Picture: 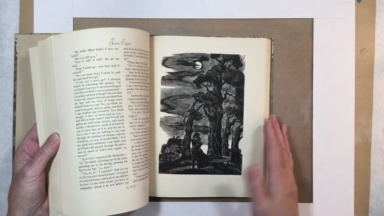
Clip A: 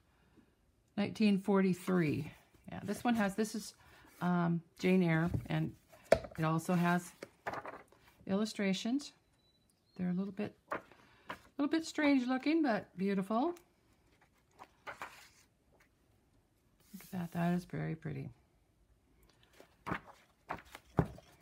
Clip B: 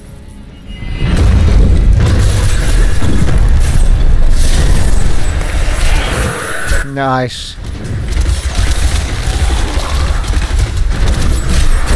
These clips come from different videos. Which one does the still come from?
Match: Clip A